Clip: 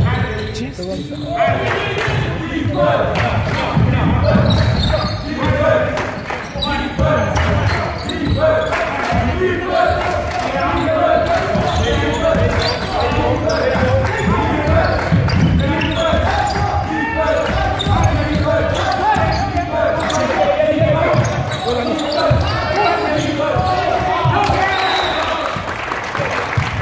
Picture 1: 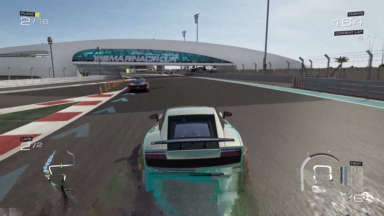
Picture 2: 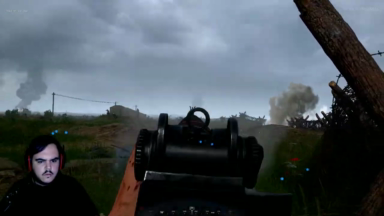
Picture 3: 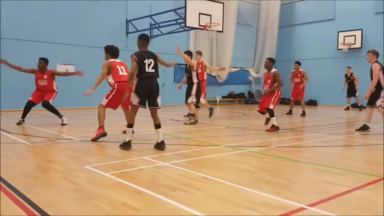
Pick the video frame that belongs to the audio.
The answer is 3